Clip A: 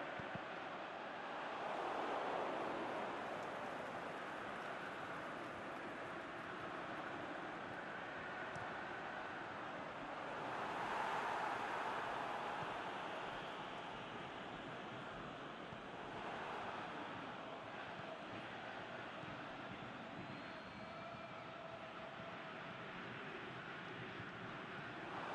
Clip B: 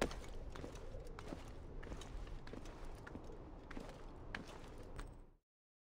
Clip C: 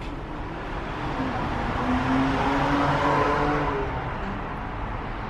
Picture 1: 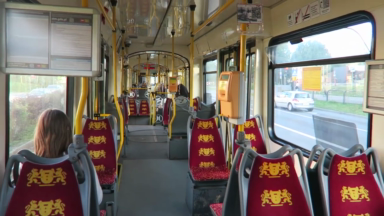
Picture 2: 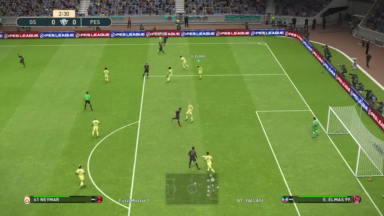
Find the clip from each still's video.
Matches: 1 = C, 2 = A